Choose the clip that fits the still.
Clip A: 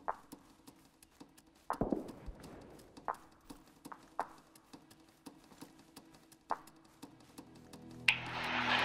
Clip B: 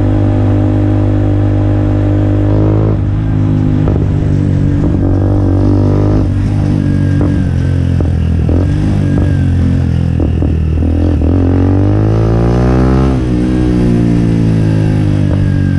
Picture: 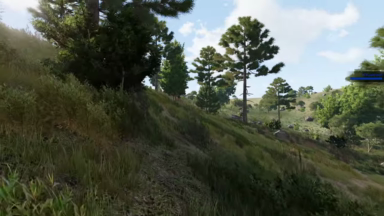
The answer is A